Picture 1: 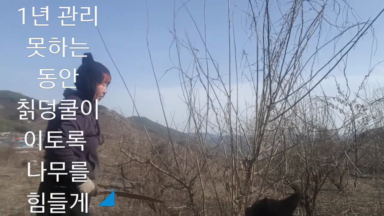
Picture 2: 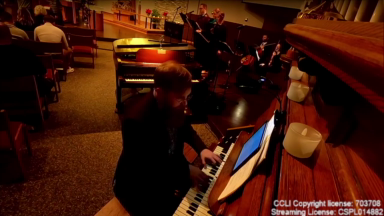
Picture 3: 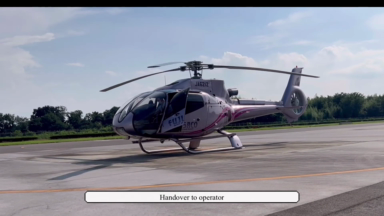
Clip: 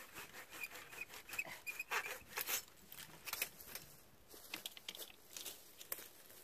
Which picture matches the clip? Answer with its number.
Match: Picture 1